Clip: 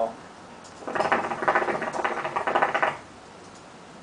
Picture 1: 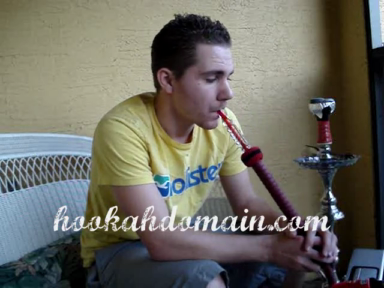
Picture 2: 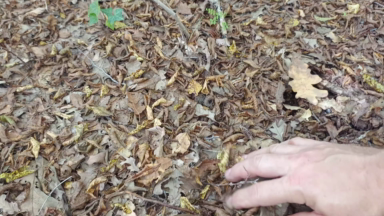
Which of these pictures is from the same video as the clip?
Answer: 1